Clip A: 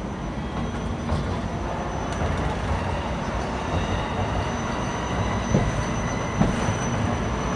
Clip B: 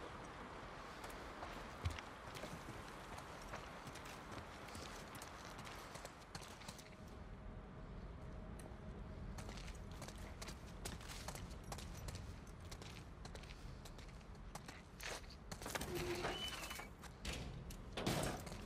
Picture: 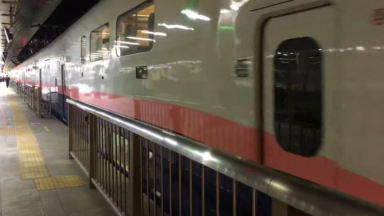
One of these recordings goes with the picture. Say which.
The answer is A